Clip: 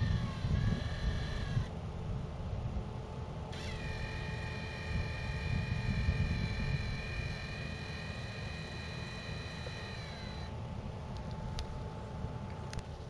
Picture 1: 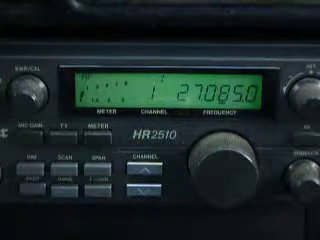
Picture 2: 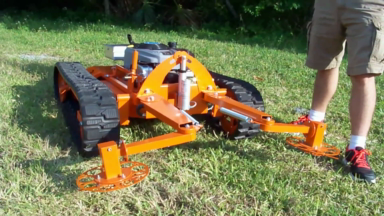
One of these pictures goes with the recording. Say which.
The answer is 2